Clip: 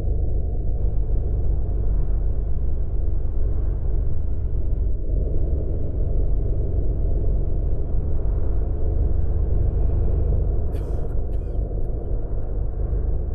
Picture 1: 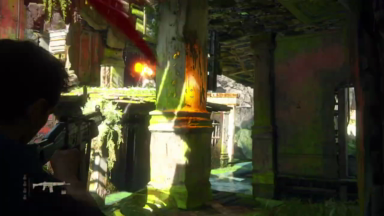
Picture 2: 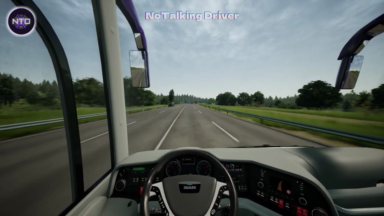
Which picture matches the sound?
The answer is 2